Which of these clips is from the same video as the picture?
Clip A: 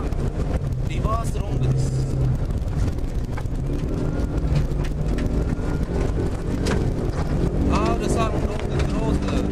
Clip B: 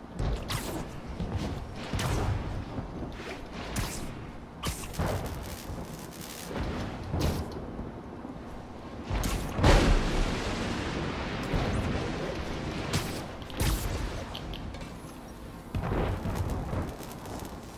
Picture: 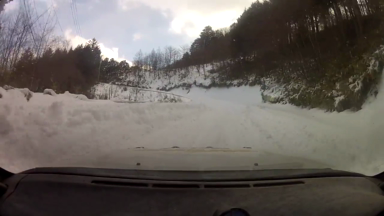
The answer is A